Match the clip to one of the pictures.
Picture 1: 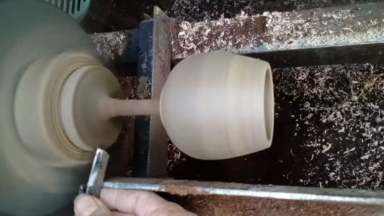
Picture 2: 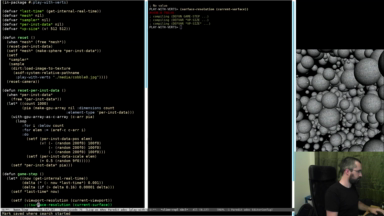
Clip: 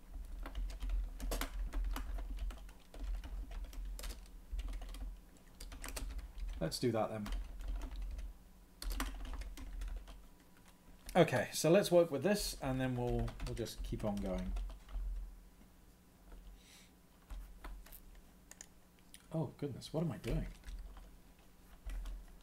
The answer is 2